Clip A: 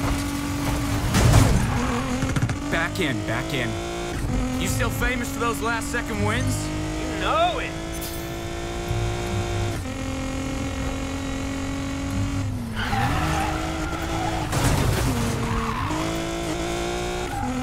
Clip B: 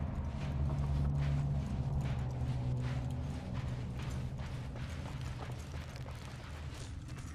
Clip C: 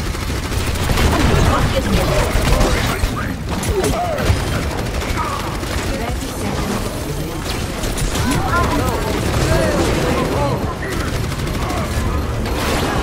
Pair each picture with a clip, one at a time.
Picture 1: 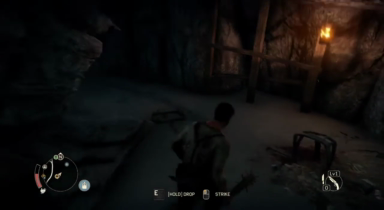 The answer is B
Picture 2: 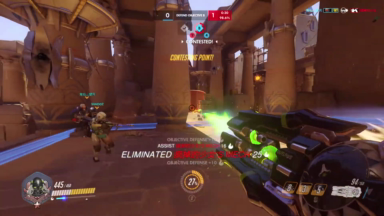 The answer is C